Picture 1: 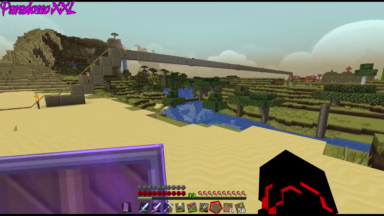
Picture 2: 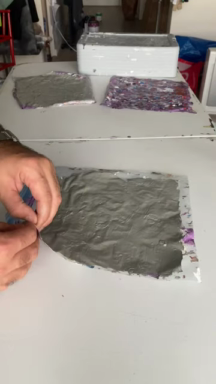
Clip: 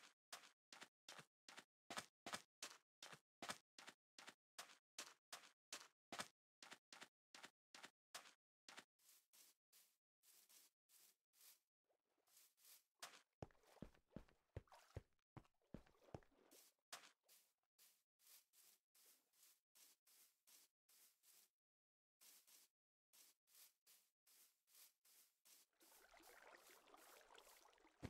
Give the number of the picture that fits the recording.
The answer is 1